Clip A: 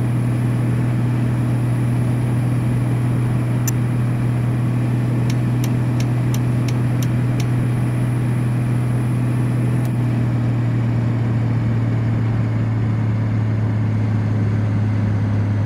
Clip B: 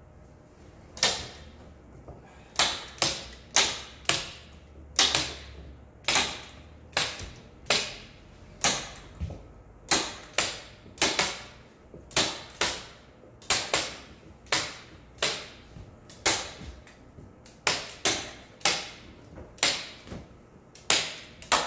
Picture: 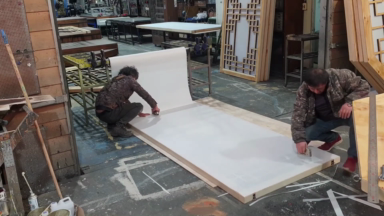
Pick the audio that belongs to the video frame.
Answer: B